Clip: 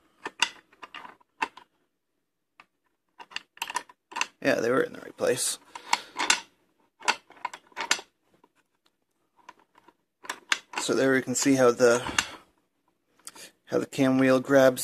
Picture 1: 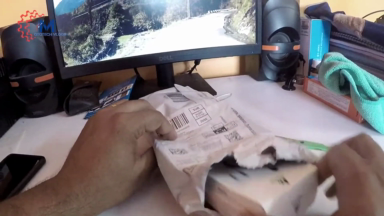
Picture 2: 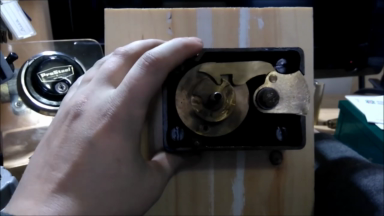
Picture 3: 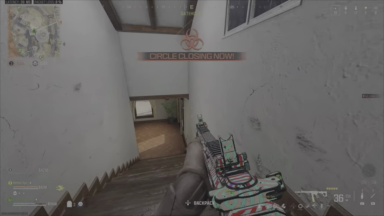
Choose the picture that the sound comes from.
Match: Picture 2